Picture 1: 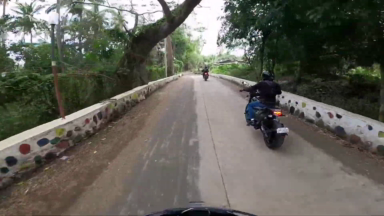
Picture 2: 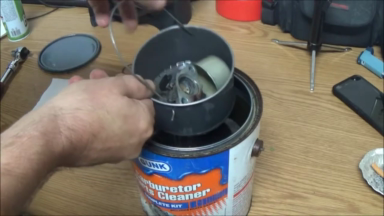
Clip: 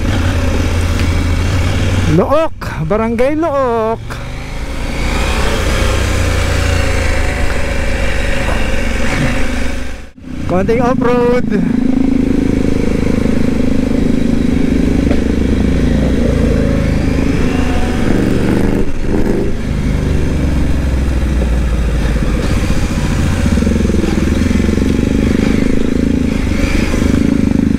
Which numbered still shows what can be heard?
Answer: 1